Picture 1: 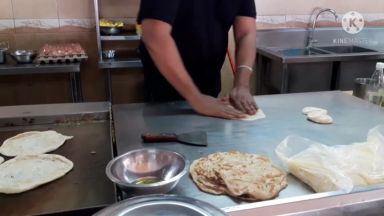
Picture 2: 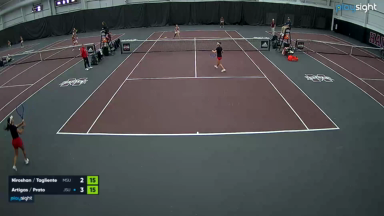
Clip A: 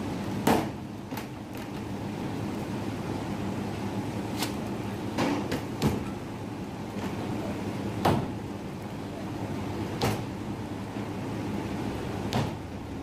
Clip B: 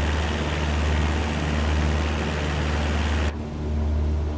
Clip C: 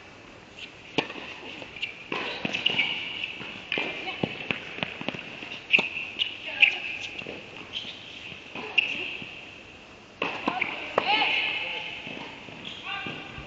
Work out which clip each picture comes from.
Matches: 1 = A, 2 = C